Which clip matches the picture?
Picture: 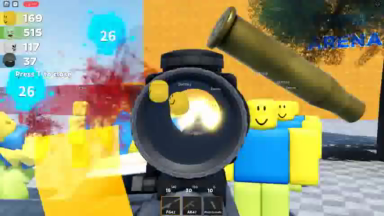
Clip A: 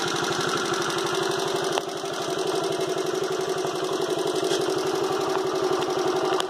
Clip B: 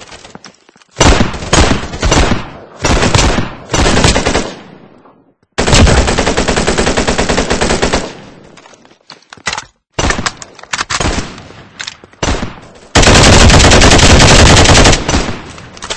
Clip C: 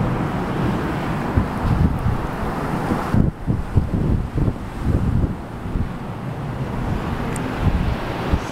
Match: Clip B